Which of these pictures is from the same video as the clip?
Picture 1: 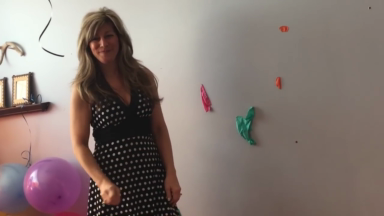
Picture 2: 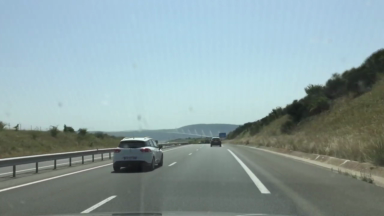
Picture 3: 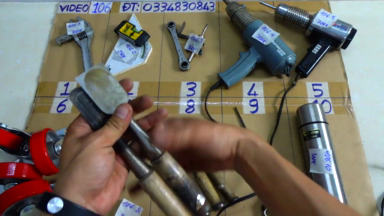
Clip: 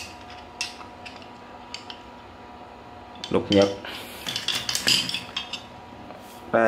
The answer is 3